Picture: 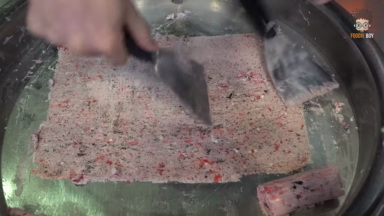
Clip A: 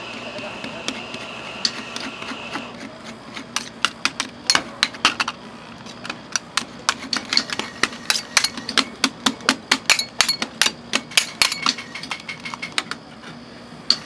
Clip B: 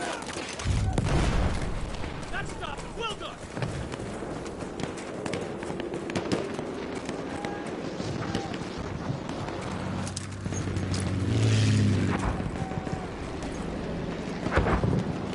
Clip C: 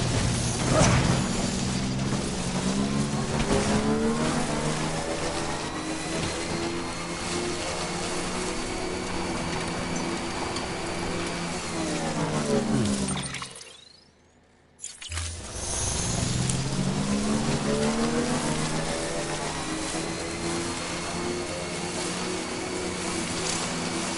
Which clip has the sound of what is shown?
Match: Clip A